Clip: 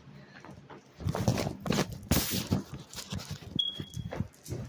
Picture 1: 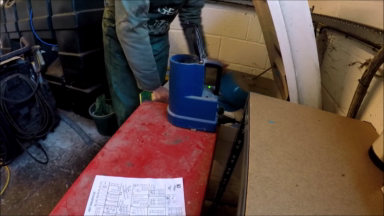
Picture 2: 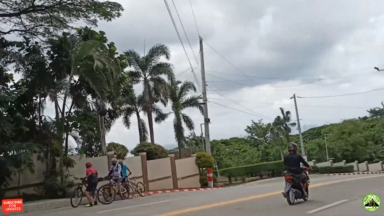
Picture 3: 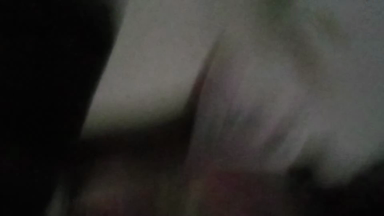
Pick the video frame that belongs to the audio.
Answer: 3